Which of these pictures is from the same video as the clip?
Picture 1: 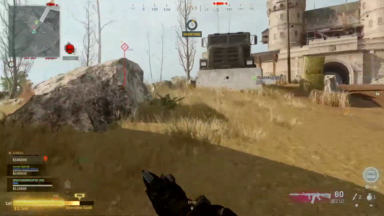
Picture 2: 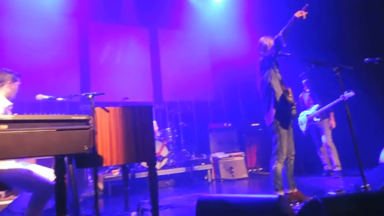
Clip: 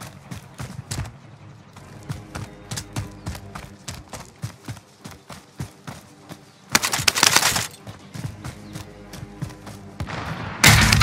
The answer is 1